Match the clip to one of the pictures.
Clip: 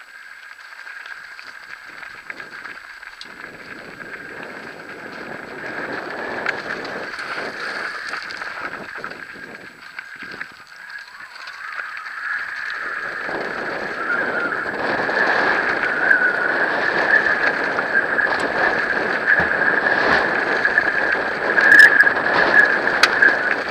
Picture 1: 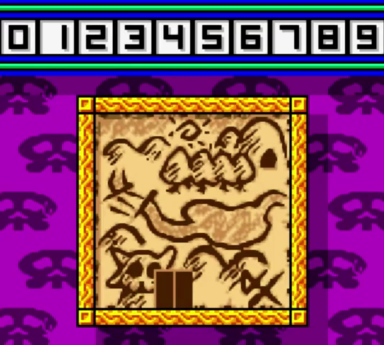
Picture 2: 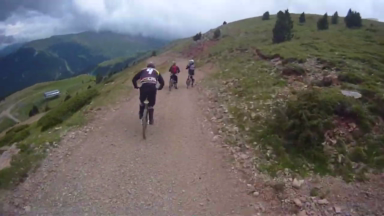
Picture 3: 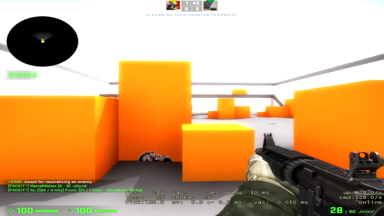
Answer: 2